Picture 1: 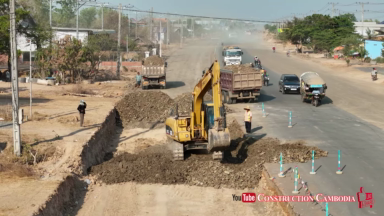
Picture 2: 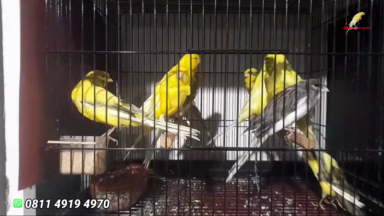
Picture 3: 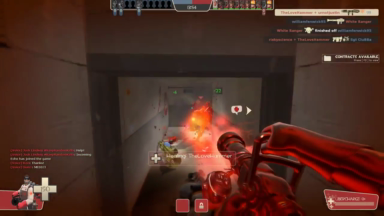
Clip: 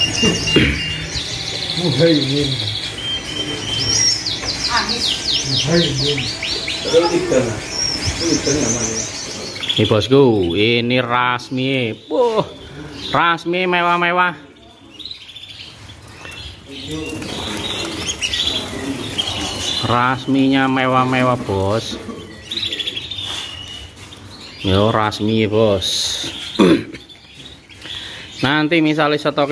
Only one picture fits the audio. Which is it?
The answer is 2